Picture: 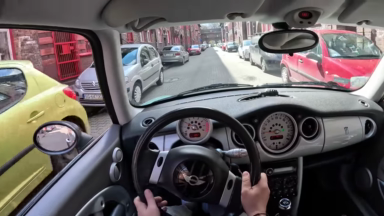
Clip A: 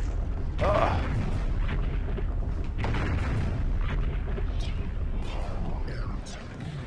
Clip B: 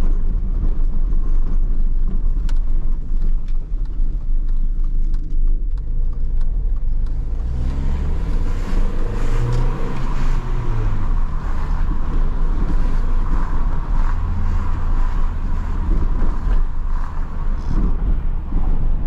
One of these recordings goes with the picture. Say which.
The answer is B